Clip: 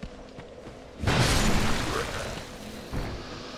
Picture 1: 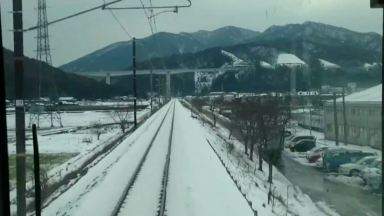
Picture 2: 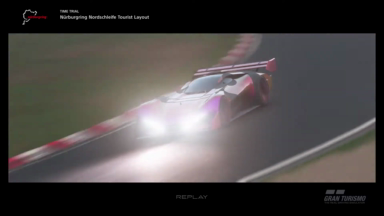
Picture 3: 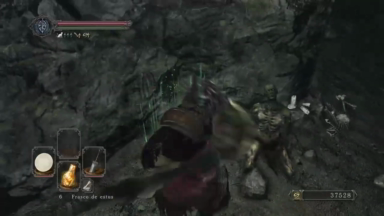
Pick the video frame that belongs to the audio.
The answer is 3